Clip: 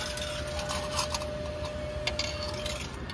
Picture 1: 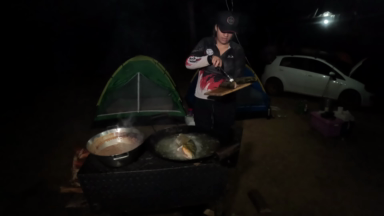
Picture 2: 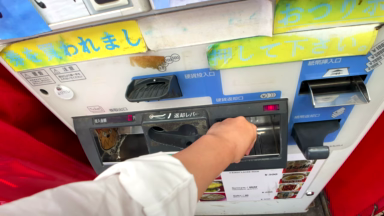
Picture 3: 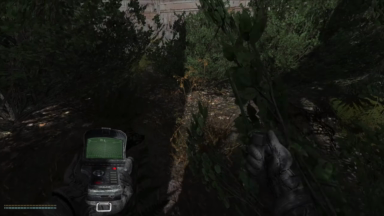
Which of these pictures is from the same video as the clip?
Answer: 2